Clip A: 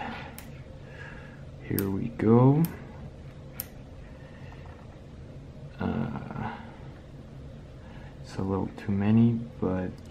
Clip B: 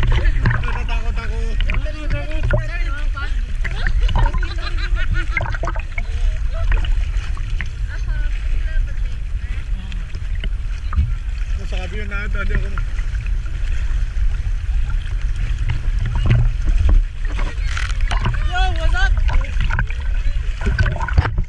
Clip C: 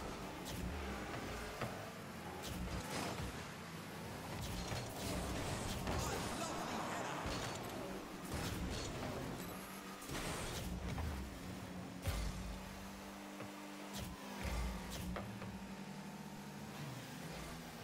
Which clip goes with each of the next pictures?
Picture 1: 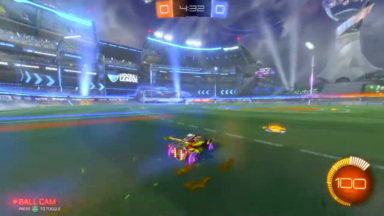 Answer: C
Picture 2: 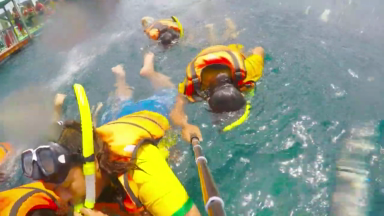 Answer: B